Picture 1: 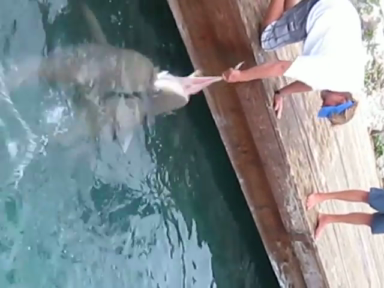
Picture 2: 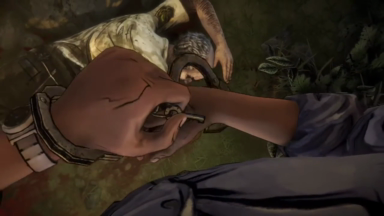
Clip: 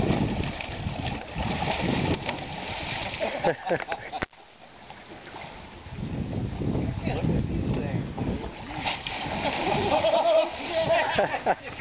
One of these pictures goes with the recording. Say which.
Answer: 1